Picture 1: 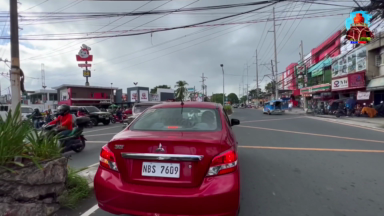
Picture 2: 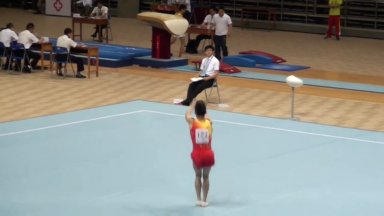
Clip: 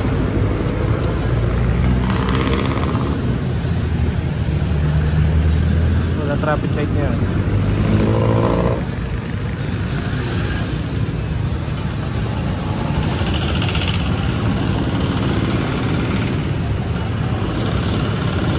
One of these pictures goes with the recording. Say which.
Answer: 1